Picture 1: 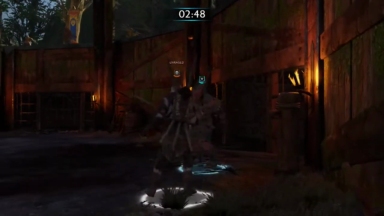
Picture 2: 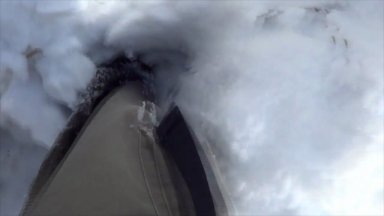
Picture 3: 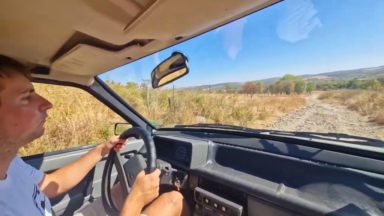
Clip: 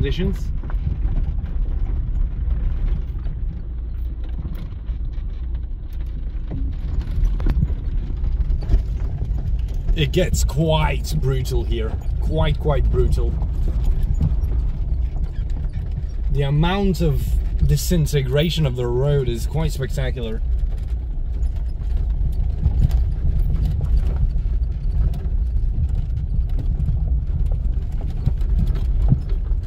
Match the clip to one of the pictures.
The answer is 3